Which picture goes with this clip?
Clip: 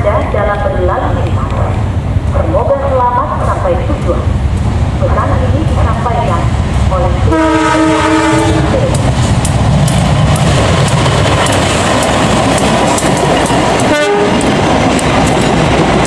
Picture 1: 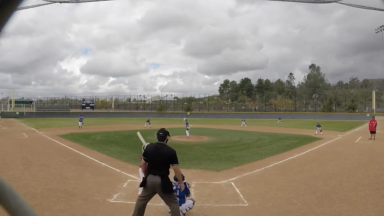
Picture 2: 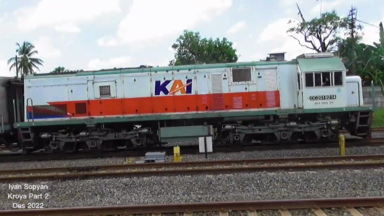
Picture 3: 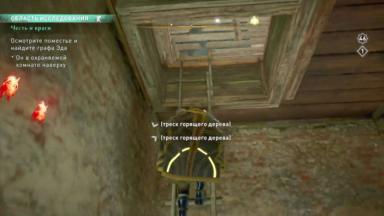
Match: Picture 2